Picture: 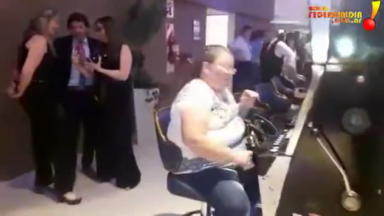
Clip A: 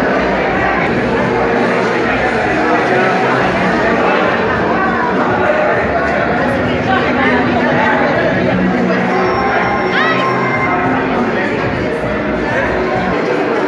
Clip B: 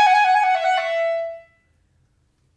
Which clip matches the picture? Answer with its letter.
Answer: A